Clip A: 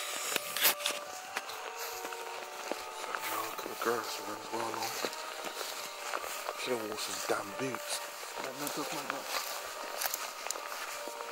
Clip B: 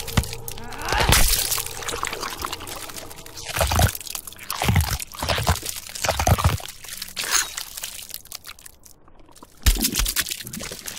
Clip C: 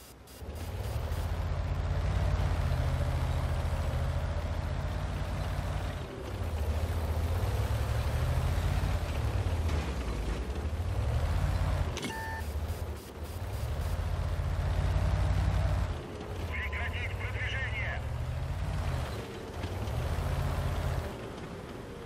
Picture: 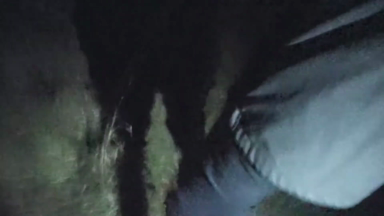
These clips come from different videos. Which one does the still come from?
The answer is A